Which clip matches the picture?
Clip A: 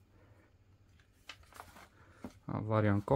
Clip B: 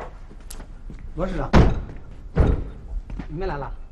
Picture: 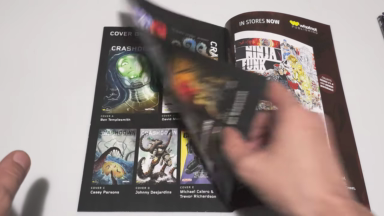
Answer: A